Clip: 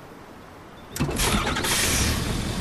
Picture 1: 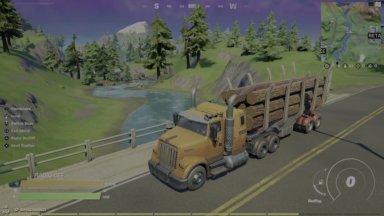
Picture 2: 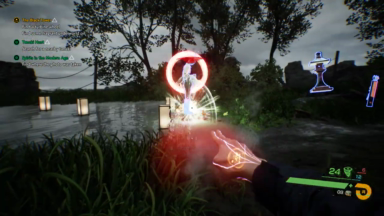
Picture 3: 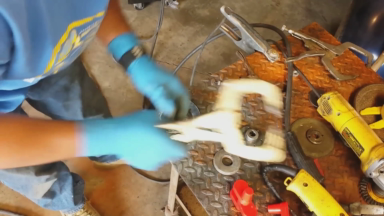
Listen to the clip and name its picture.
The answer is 1